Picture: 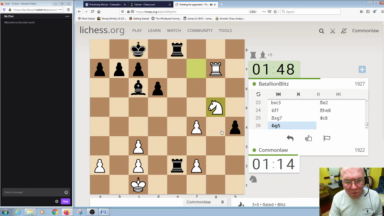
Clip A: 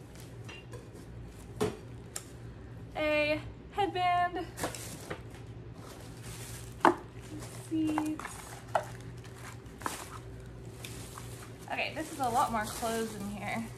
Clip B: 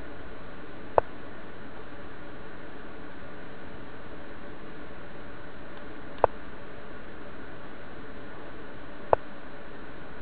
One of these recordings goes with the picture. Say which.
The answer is B